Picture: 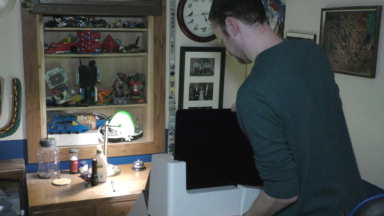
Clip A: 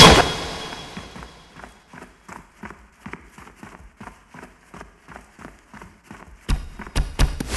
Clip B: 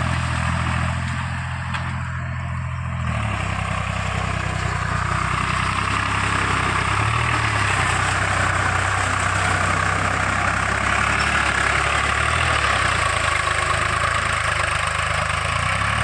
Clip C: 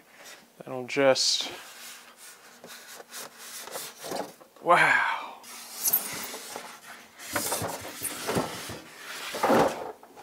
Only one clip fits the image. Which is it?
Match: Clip C